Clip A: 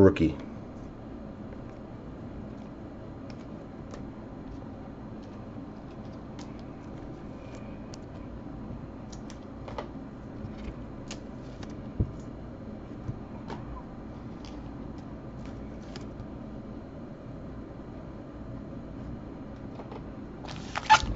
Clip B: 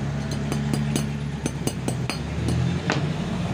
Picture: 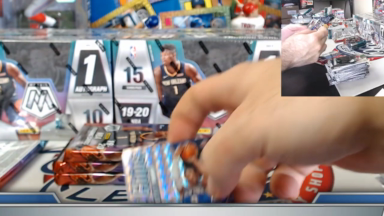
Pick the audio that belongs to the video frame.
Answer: A